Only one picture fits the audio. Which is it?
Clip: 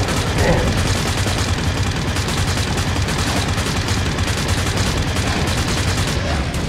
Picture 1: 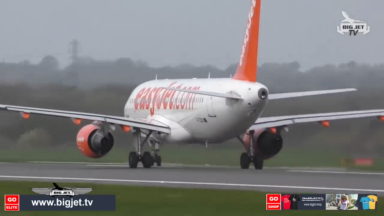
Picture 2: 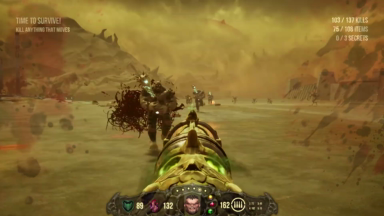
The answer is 2